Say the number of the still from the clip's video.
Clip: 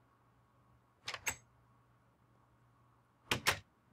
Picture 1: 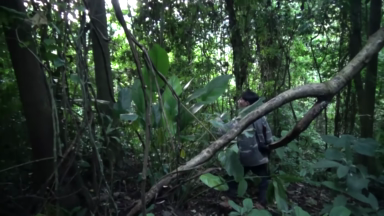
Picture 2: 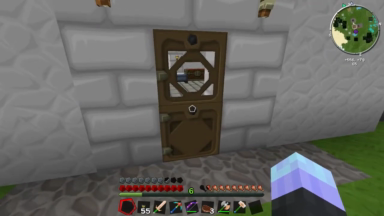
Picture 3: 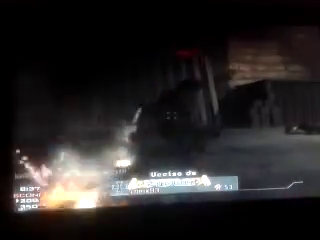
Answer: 2